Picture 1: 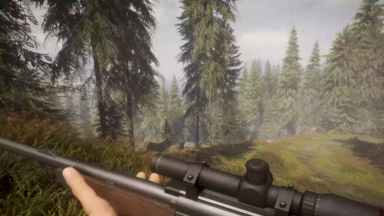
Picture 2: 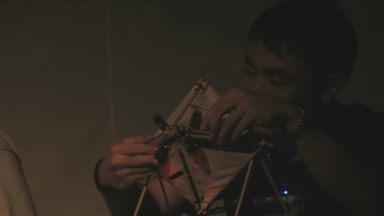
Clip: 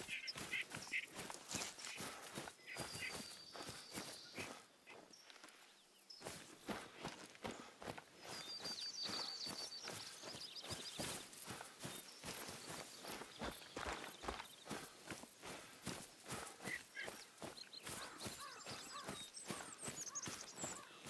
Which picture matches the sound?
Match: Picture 1